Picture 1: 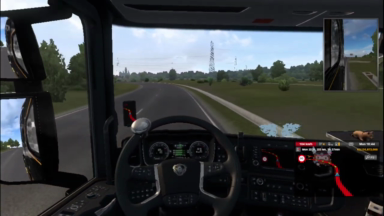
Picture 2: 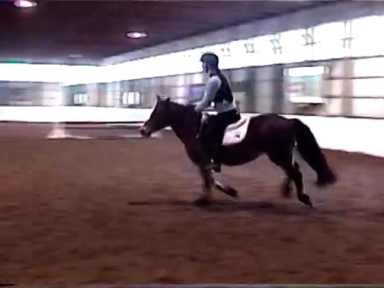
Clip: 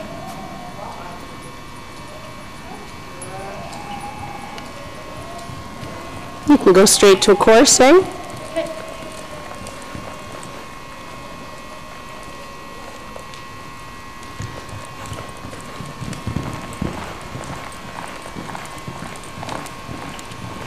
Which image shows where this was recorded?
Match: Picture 2